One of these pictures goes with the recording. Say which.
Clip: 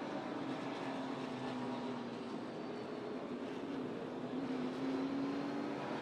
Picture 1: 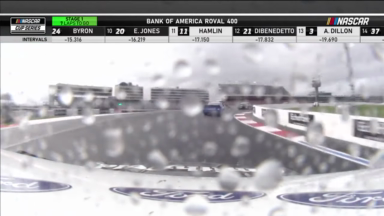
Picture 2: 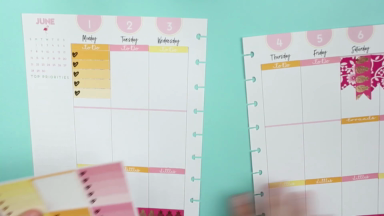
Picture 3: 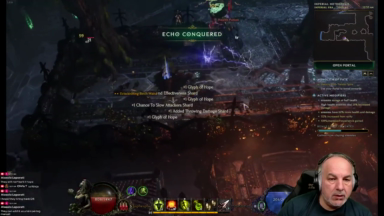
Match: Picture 1